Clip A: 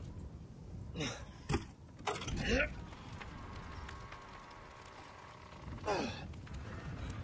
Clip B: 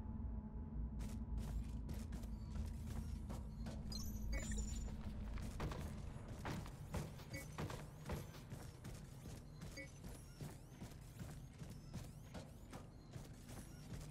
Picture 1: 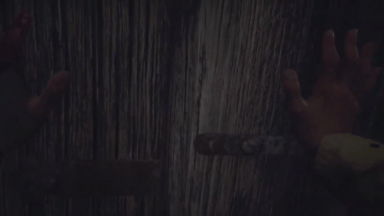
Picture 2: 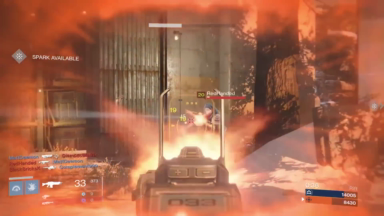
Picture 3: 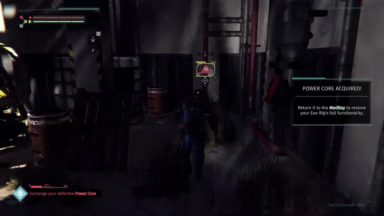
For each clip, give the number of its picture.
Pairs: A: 1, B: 3